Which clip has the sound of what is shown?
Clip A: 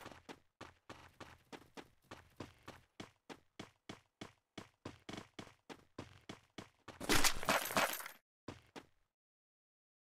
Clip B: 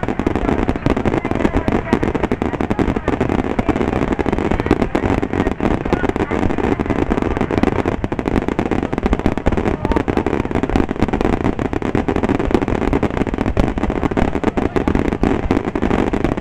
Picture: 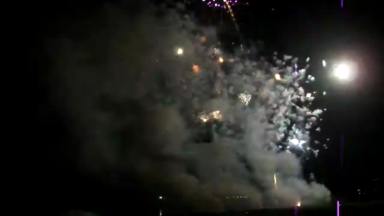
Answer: B